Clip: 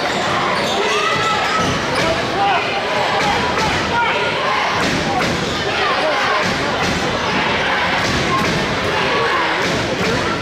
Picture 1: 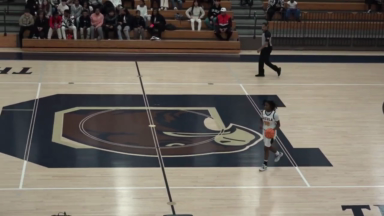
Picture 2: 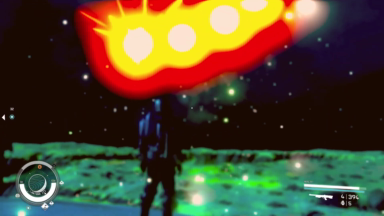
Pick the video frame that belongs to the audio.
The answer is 1